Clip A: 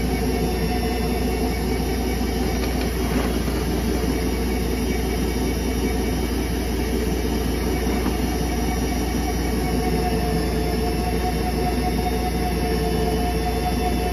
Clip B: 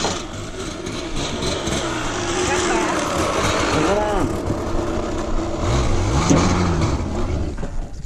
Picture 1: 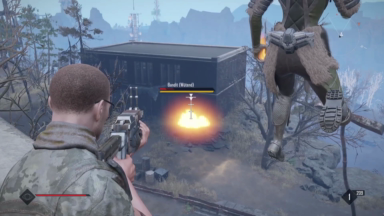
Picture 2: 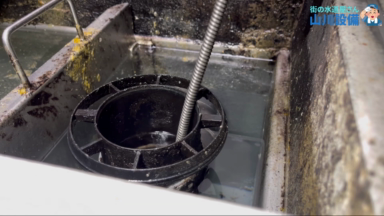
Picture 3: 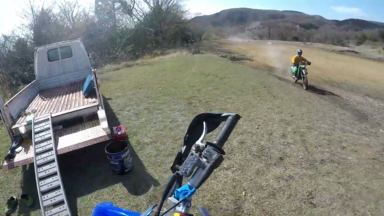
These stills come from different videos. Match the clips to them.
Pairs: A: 2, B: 3